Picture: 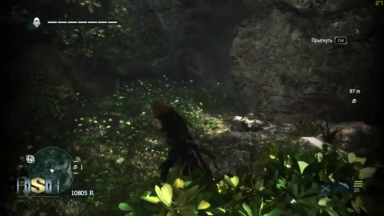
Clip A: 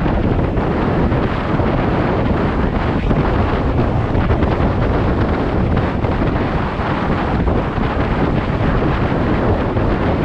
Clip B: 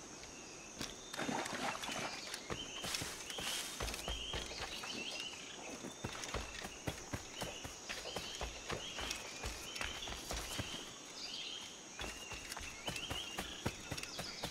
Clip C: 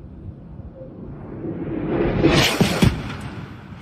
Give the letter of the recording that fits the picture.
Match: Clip B